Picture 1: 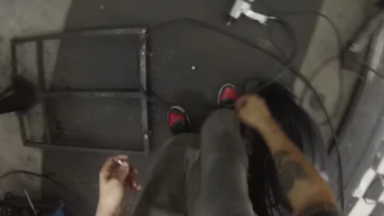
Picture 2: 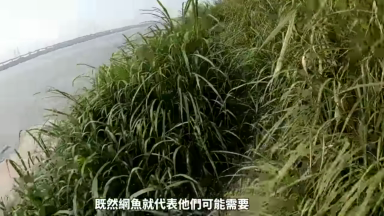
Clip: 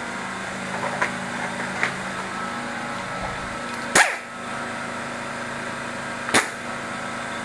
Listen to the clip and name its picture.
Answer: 1